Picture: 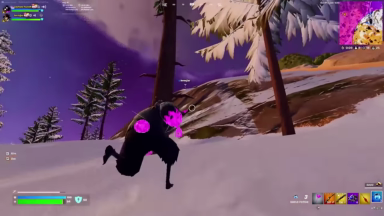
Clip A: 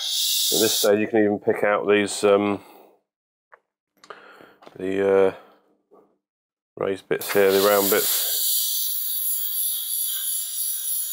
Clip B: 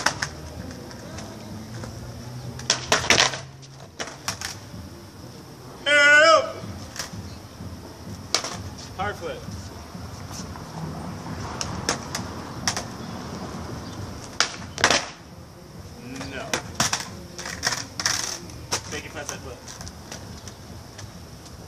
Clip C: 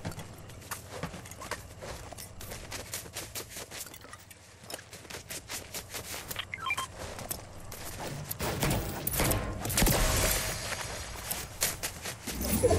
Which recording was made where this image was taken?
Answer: C